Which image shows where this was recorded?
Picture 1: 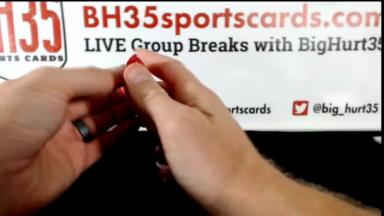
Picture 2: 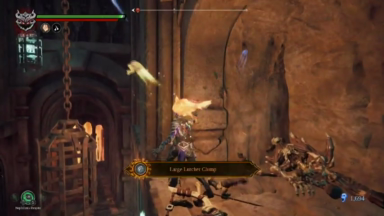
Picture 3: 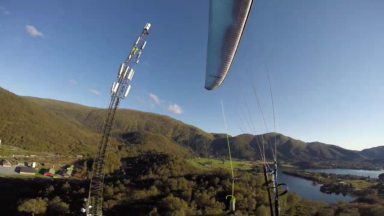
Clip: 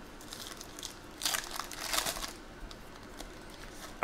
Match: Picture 1